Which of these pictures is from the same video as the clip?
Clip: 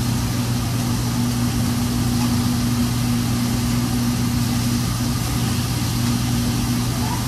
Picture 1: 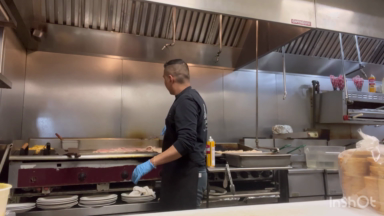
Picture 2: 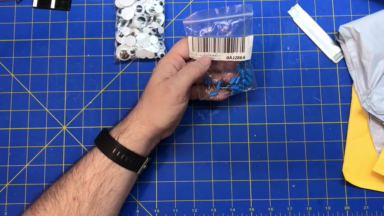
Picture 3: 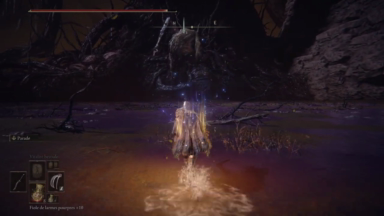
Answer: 1